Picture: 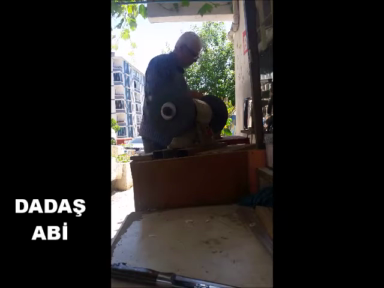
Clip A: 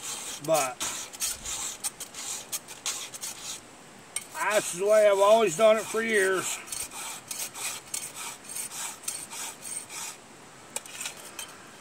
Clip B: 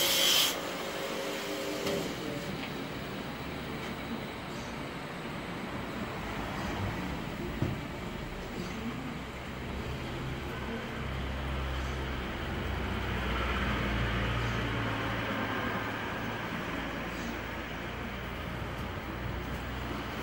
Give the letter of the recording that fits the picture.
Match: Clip B